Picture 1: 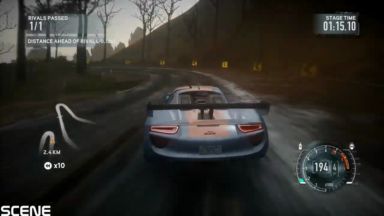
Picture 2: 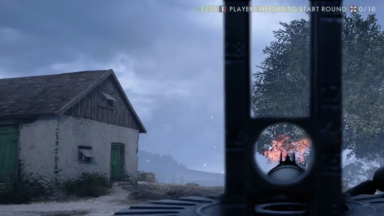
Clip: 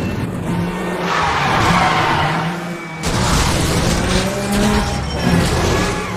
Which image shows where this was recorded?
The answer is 1